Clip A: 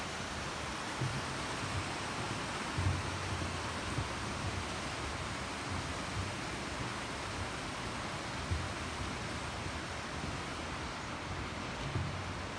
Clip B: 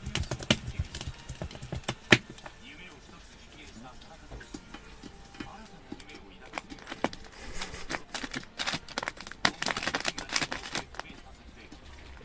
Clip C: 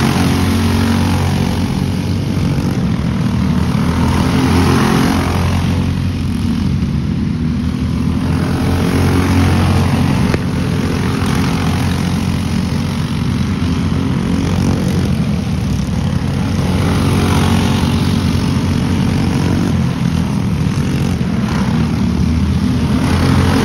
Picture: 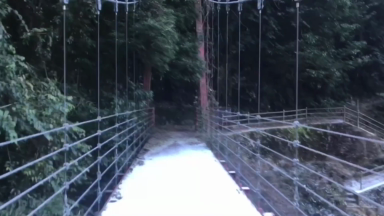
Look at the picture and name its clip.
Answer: A